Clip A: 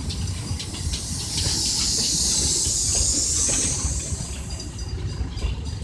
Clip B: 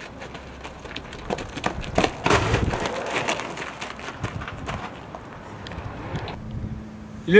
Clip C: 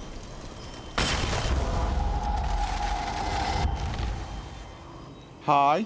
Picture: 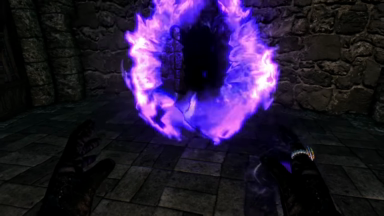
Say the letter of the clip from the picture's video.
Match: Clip C